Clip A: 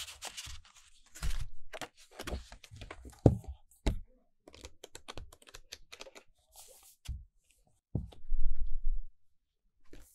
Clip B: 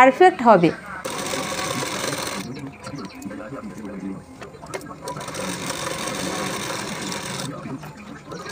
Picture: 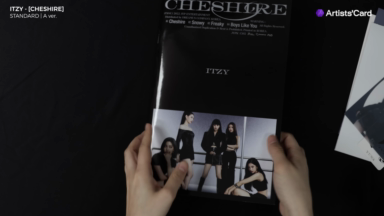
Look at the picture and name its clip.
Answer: A